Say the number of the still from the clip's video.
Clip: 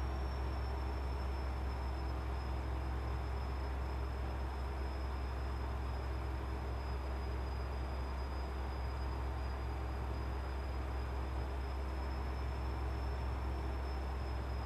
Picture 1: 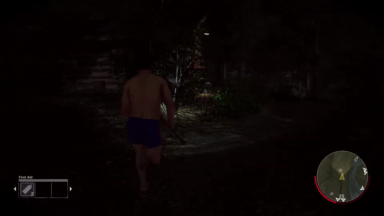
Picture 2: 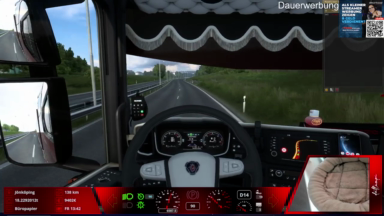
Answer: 2